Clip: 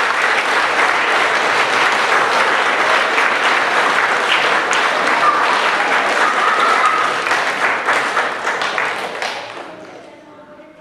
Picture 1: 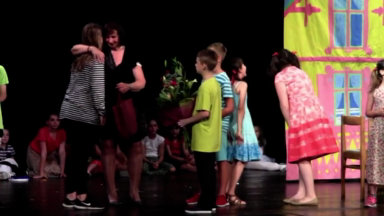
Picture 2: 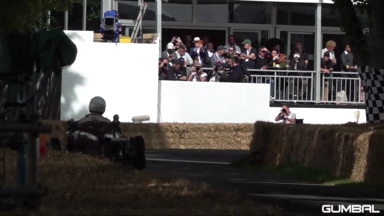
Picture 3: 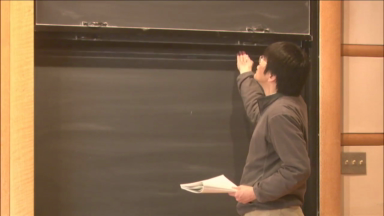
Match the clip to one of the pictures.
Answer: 1